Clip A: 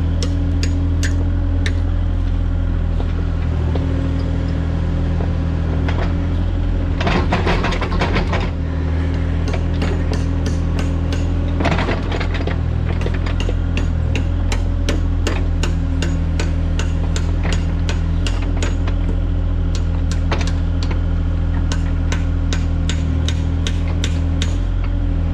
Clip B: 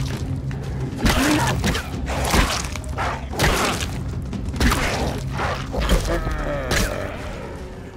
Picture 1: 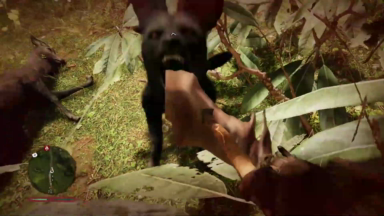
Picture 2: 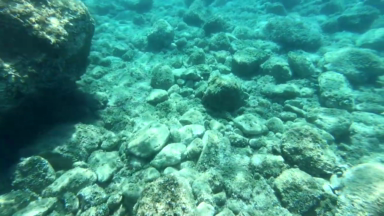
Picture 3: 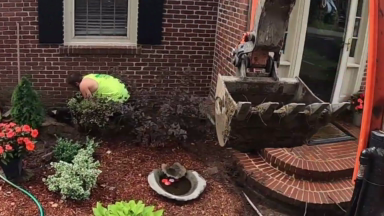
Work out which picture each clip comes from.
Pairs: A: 3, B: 1